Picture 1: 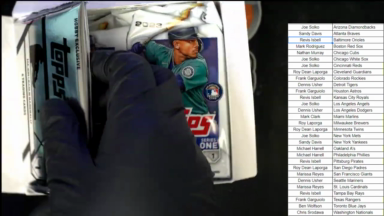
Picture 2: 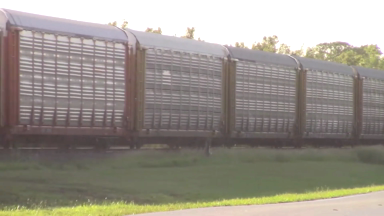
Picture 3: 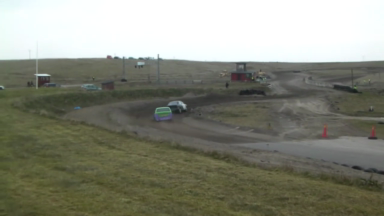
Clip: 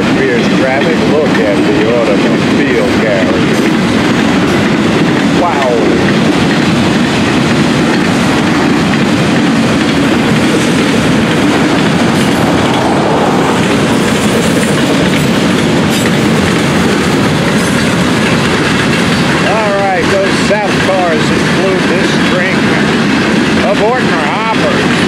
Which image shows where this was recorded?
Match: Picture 2